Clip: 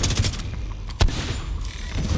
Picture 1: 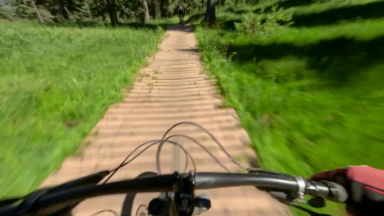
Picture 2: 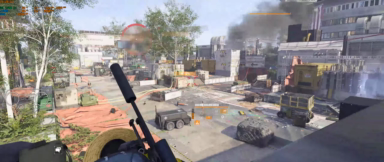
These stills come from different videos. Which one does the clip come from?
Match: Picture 2